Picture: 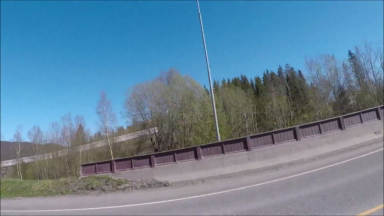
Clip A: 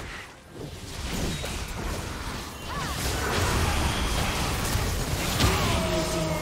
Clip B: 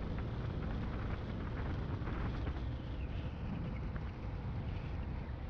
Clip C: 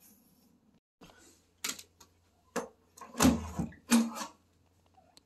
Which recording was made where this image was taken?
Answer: B